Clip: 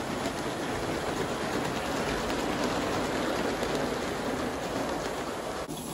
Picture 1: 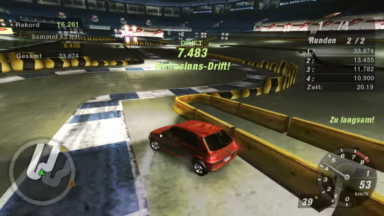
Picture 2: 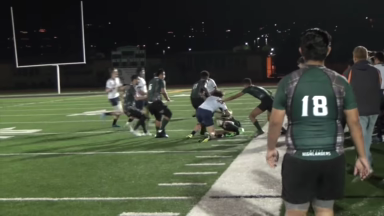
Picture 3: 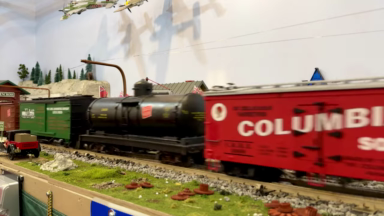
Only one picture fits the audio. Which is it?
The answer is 3